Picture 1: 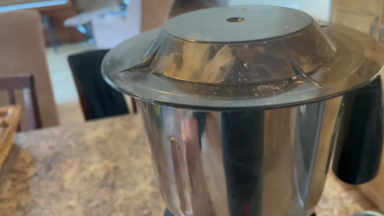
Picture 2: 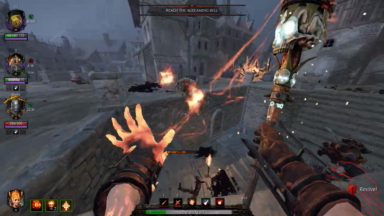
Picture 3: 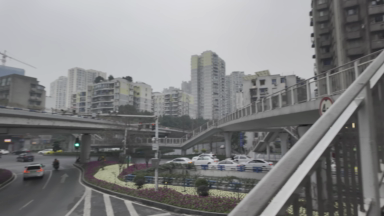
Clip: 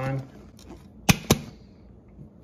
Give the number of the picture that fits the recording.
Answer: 1